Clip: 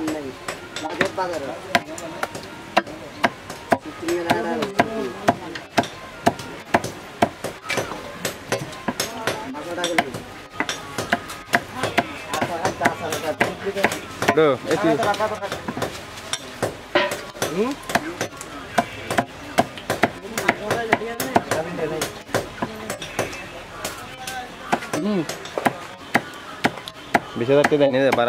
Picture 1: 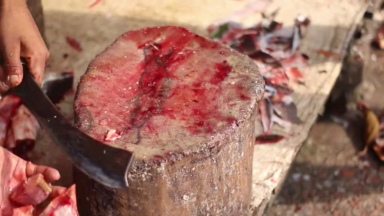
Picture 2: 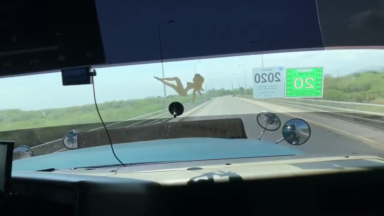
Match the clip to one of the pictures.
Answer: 1